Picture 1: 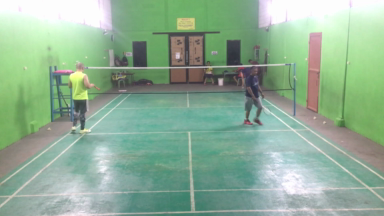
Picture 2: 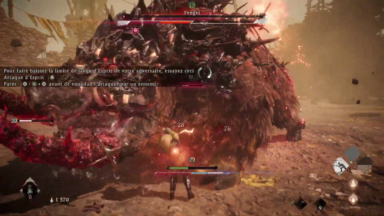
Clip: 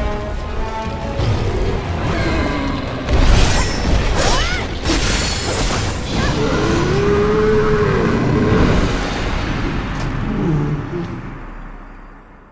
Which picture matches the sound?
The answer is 2